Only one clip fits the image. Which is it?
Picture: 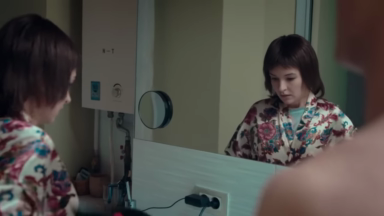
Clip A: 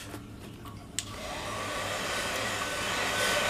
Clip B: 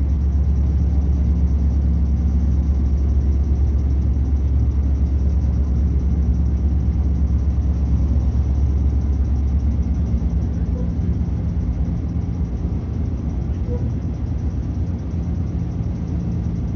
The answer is A